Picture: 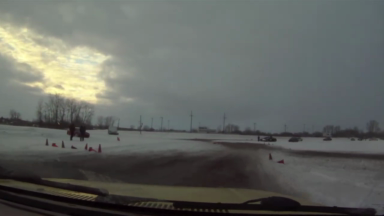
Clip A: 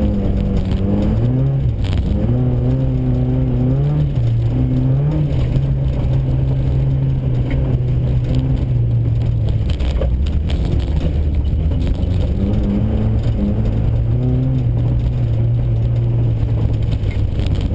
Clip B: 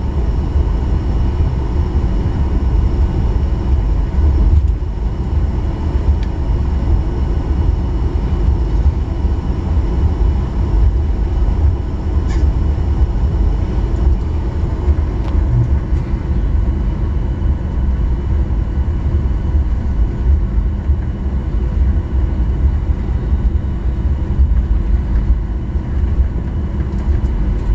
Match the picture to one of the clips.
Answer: A